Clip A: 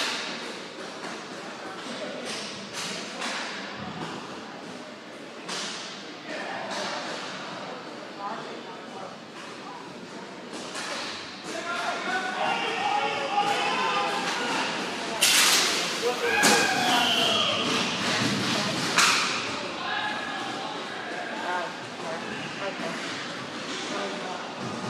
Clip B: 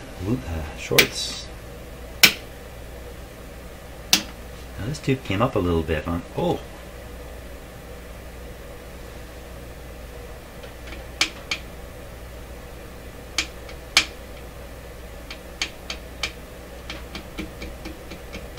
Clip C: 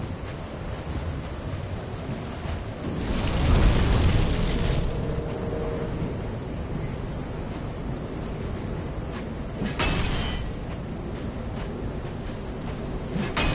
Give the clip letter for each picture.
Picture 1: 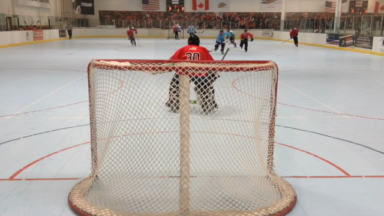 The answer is A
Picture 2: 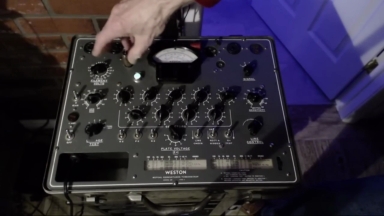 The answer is B